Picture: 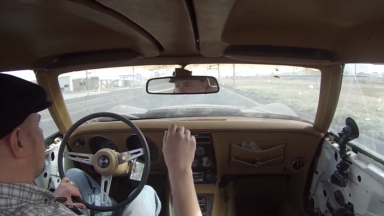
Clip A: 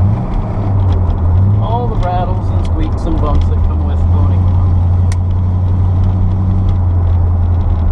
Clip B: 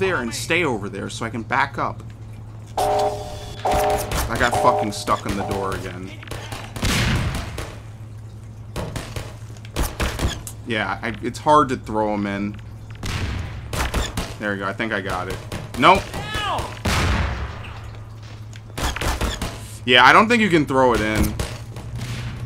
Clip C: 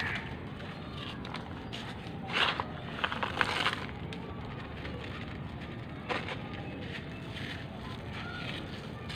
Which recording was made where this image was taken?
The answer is A